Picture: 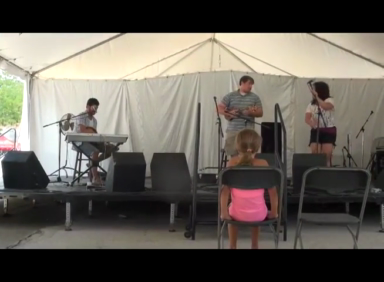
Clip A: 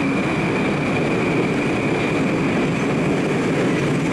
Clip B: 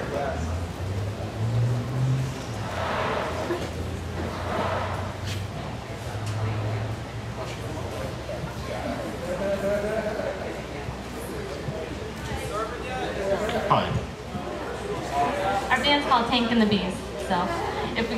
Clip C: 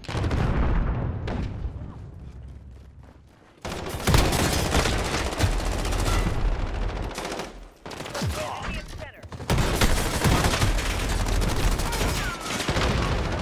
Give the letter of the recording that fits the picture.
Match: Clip B